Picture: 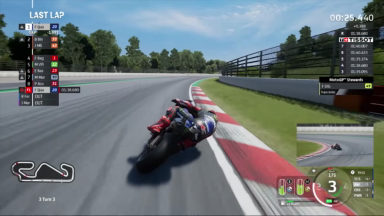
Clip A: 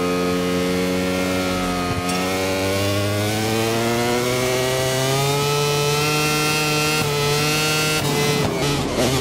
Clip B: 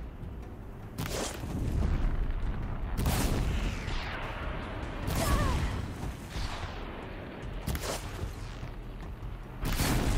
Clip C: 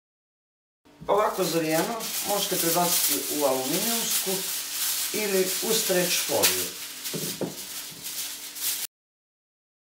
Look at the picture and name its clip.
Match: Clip A